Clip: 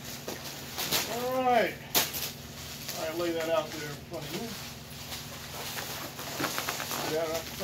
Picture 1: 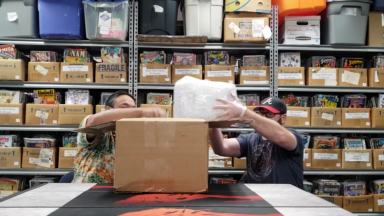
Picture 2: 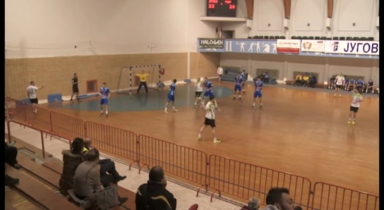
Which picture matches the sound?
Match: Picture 1